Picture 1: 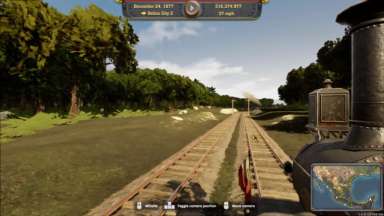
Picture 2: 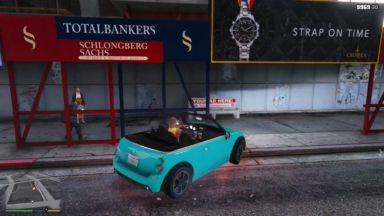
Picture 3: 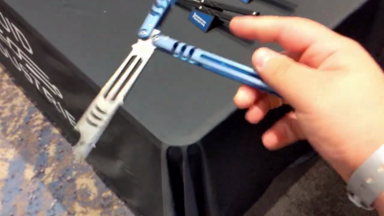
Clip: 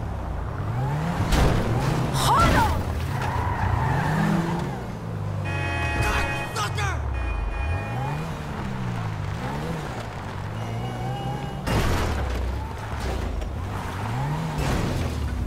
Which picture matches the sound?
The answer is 2